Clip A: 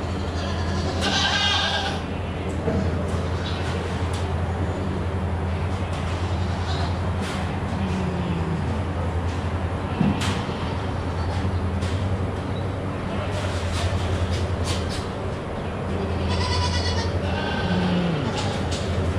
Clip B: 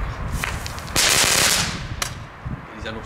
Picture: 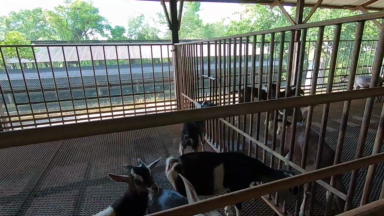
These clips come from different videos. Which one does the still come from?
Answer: A